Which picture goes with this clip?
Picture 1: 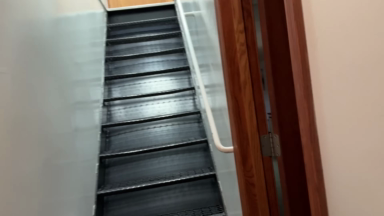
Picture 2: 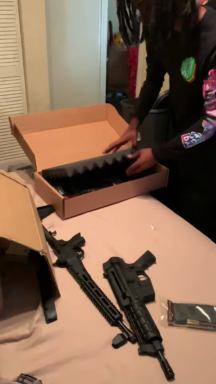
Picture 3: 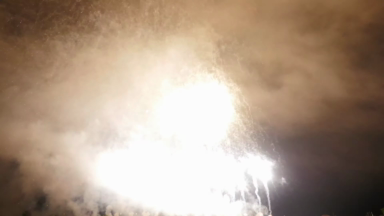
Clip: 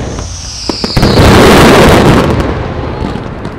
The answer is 3